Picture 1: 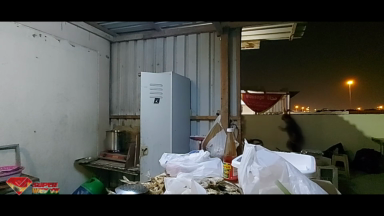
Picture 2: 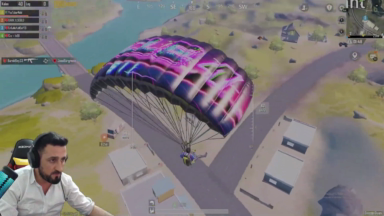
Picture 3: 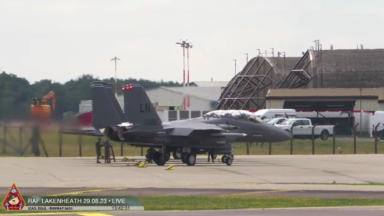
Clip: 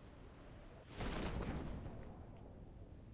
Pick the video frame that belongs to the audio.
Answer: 2